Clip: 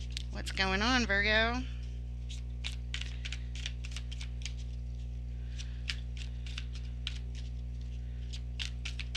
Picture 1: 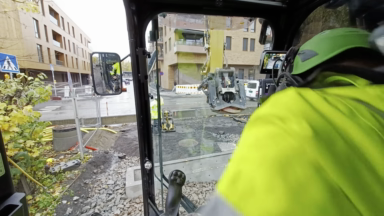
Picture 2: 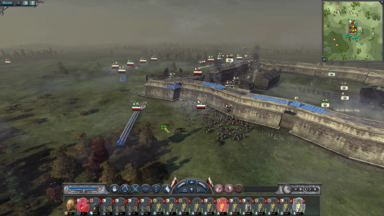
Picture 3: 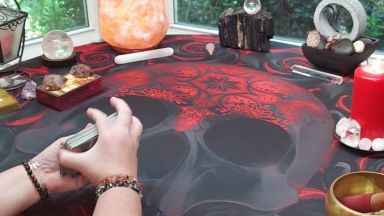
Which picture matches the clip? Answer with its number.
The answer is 3